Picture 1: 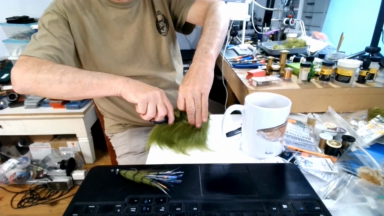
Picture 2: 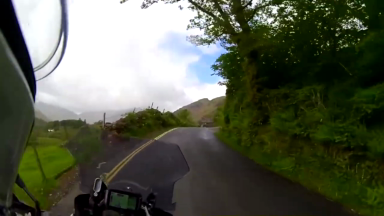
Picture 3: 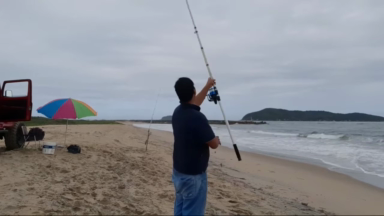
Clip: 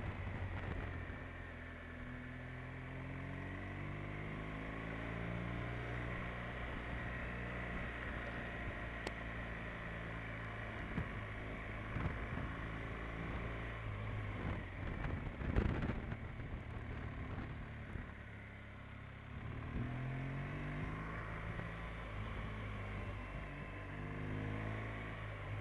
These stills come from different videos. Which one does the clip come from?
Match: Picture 2